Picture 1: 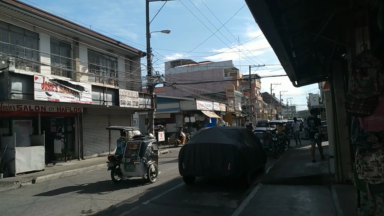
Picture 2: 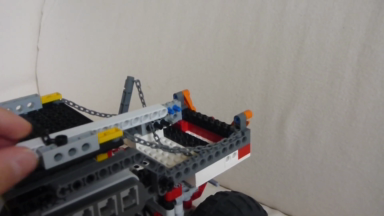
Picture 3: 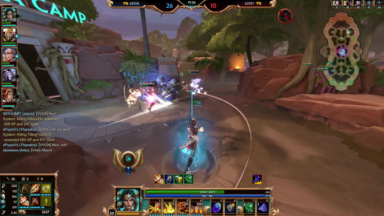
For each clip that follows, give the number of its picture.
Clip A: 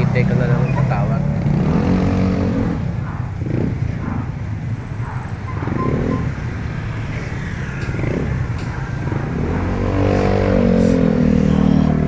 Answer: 1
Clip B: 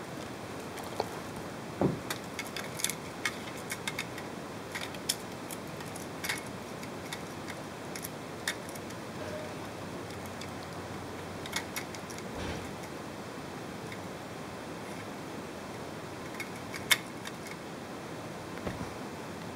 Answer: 2